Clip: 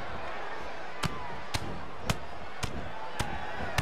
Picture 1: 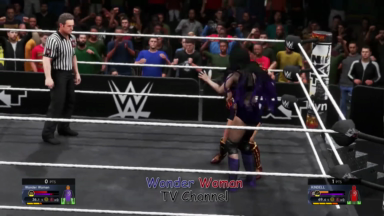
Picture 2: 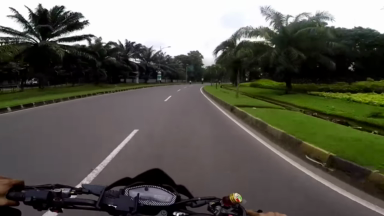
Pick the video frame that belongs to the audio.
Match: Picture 1